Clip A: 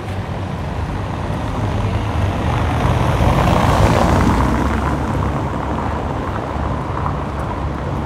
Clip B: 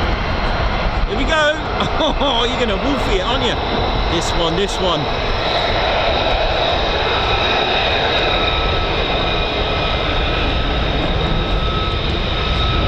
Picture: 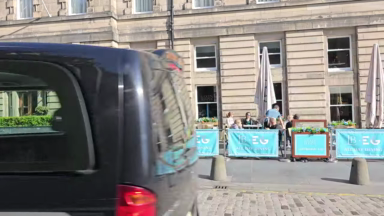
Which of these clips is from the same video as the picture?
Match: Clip A